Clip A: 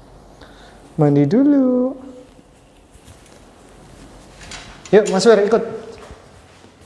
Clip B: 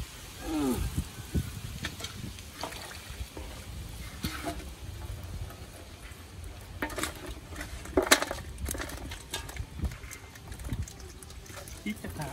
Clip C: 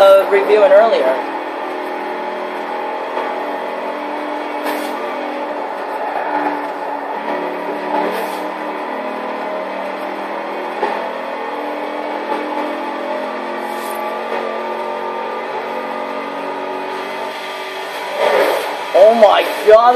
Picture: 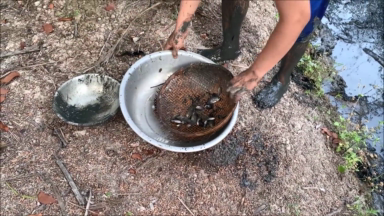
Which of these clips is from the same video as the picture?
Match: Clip B